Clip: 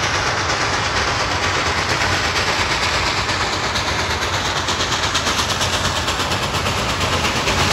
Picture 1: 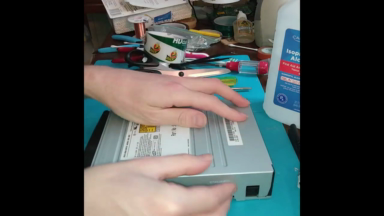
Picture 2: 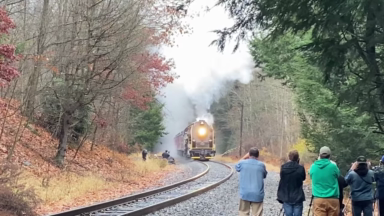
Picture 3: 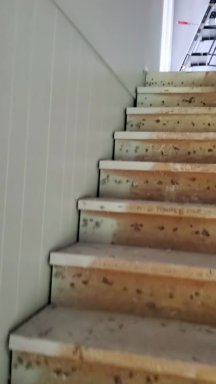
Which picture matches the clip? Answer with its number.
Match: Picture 2